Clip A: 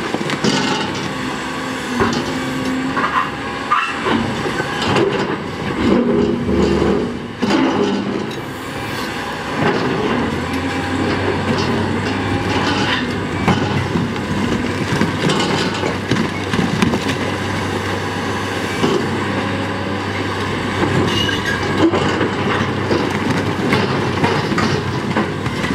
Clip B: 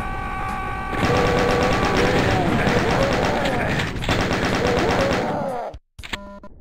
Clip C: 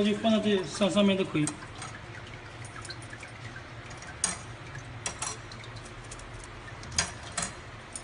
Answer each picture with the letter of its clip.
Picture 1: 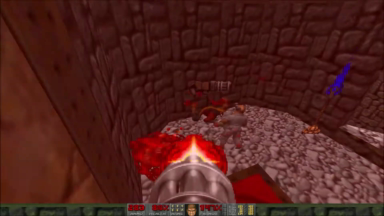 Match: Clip B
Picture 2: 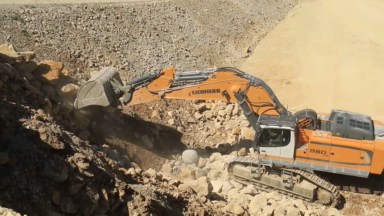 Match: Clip A